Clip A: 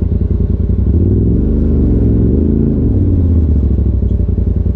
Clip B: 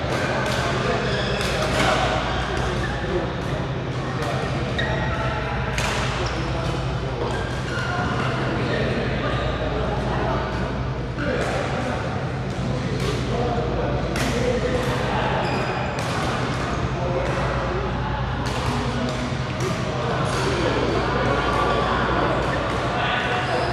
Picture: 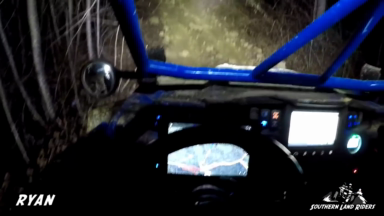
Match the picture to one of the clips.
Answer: A